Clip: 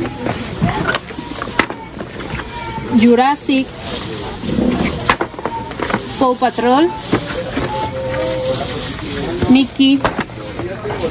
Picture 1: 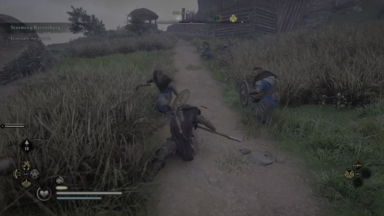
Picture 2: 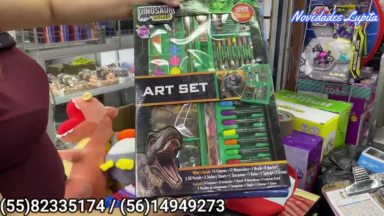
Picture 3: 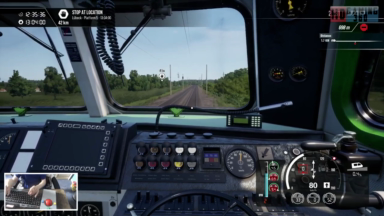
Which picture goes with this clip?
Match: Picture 2